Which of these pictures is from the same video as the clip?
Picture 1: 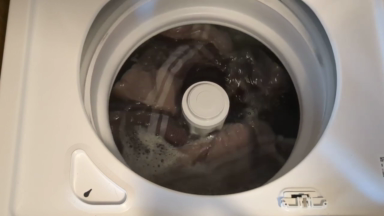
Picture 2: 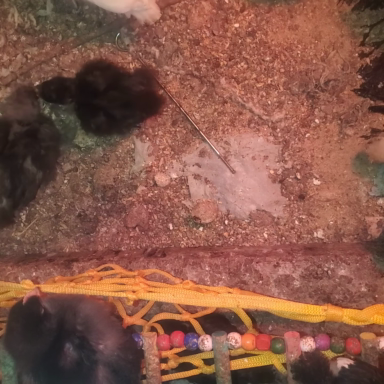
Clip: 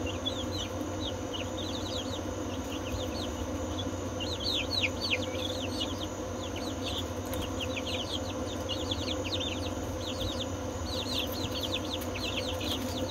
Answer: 2